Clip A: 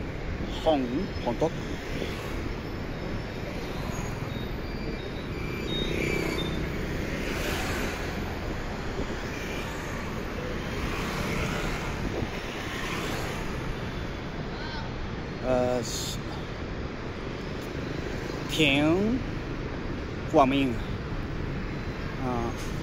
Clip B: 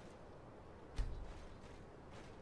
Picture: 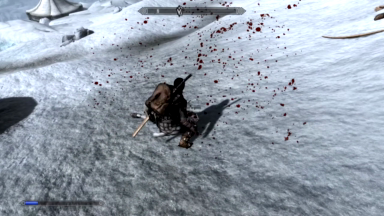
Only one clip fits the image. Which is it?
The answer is B